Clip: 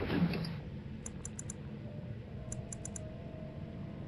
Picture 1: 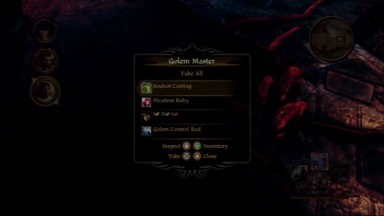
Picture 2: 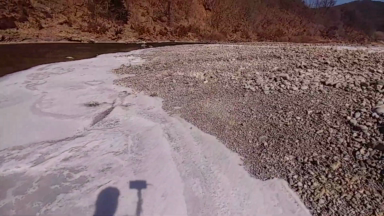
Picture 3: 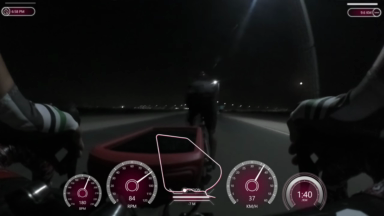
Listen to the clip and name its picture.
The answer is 1